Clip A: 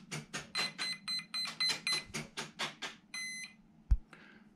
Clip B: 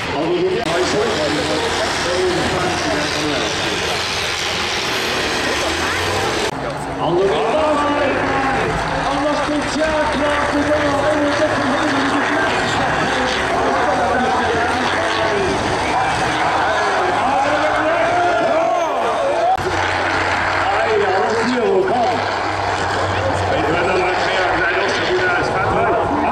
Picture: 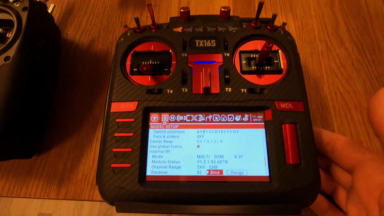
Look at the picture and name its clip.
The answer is A